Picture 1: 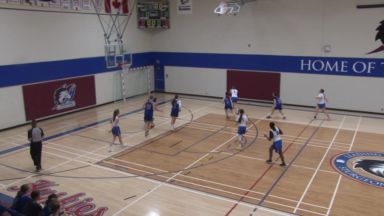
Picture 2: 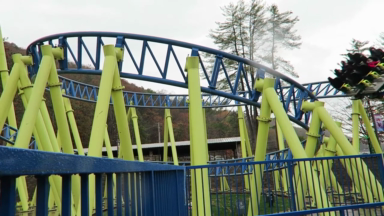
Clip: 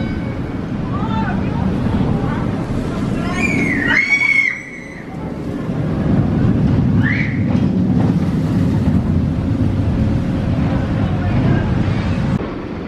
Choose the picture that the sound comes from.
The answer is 2